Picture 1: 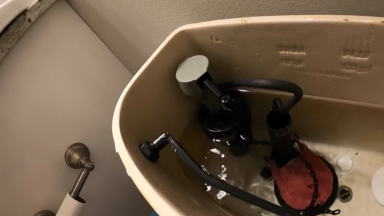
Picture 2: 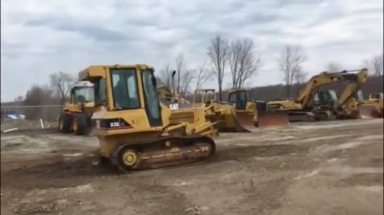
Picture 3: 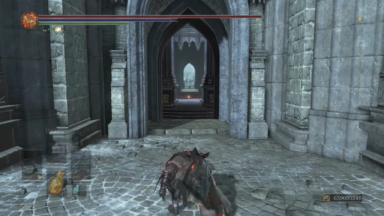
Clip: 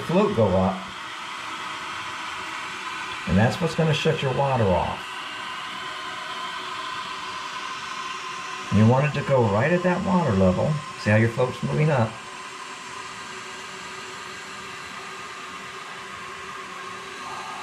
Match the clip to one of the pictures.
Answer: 1